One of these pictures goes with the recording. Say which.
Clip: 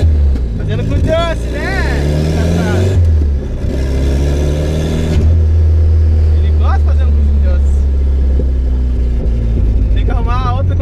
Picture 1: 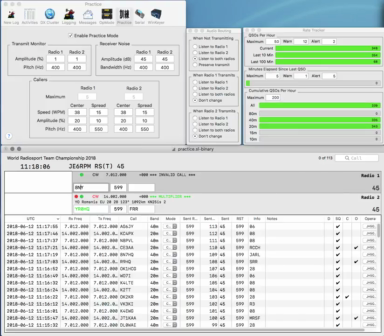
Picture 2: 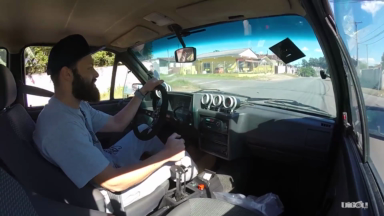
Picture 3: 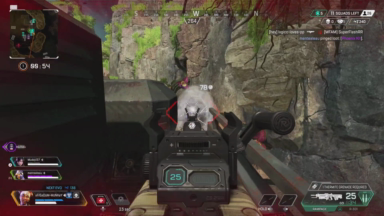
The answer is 2